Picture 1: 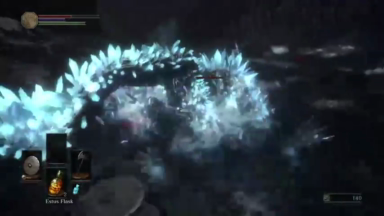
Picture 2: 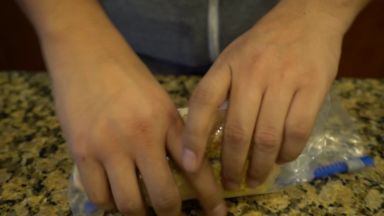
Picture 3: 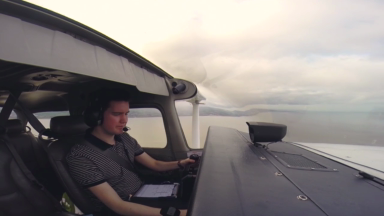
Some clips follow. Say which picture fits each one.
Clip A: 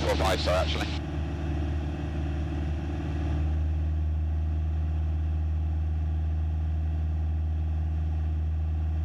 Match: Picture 3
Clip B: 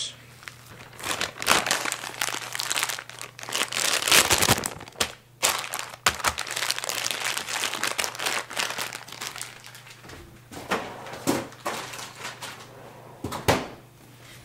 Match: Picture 2